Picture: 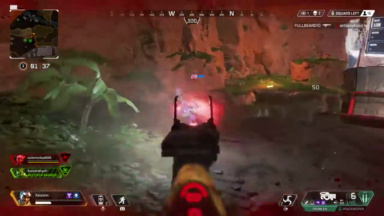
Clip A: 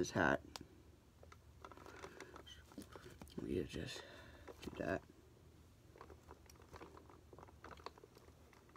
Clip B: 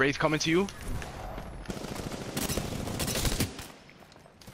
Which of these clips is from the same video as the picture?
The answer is B